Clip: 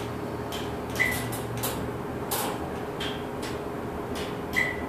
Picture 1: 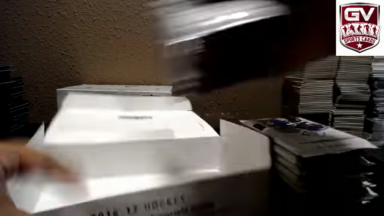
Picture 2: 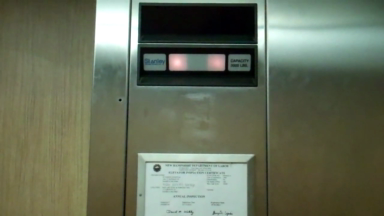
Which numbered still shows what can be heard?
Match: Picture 2